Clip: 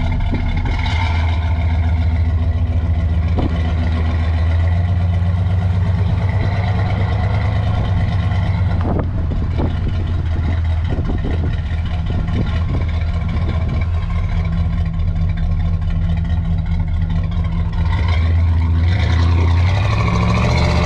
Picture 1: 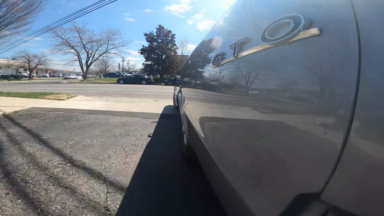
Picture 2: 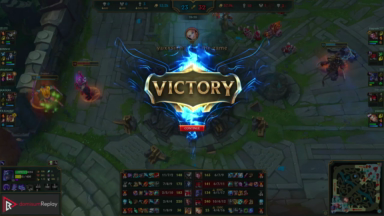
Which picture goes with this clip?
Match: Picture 1